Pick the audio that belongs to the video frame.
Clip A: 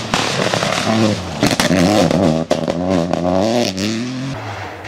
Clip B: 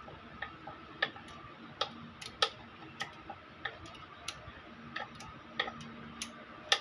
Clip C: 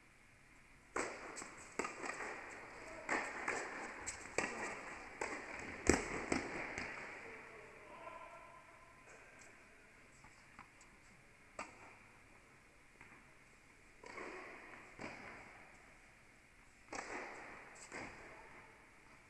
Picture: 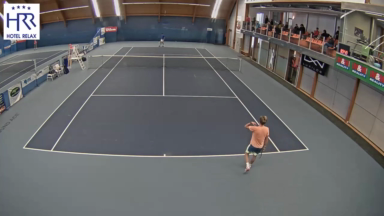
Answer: C